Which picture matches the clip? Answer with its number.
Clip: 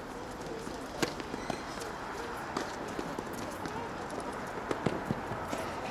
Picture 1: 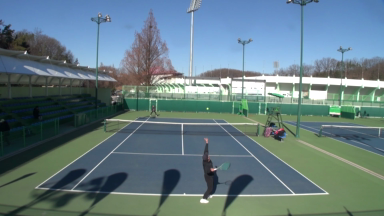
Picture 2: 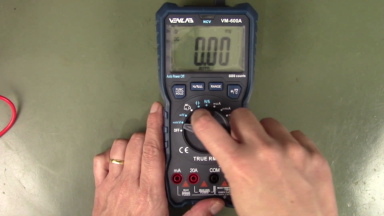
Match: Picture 1